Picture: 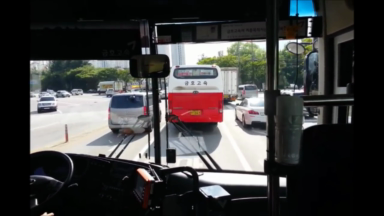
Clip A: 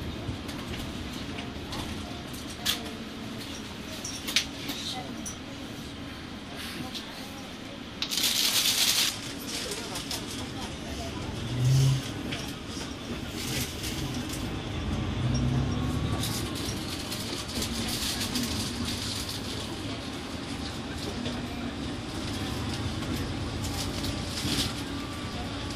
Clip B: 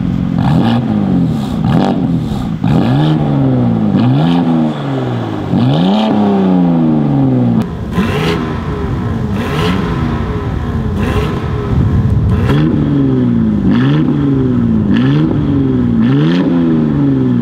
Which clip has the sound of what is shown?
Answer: A